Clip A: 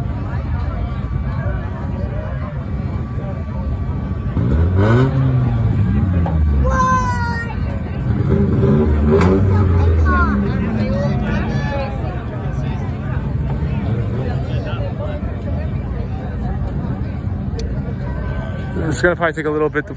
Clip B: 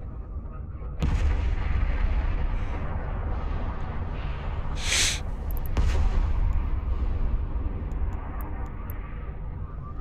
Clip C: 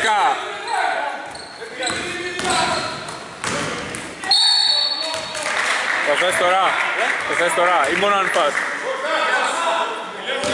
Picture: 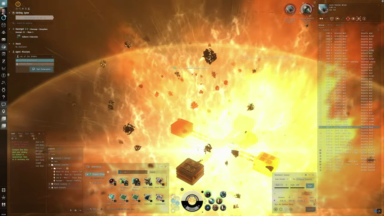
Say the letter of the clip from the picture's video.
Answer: B